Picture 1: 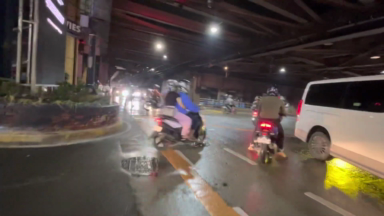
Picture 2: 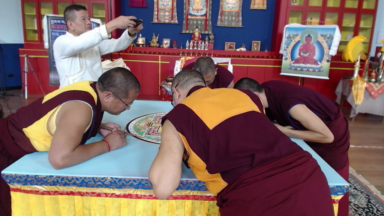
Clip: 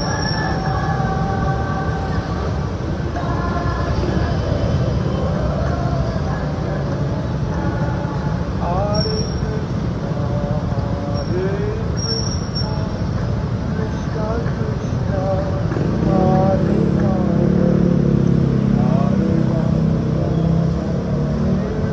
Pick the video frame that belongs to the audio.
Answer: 1